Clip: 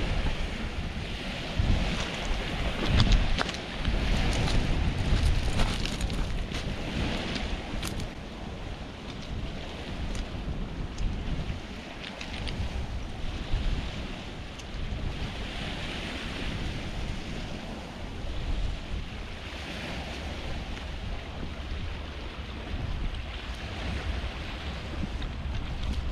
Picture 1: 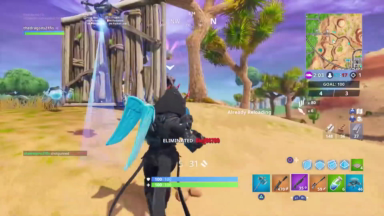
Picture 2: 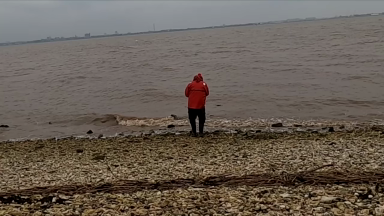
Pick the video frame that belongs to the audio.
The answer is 2